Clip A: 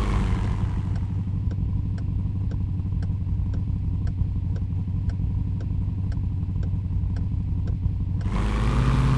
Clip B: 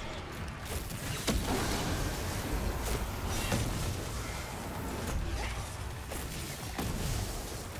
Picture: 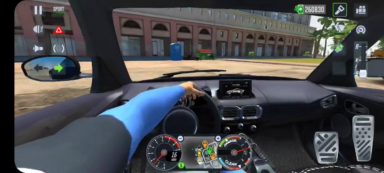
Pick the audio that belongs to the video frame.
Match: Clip A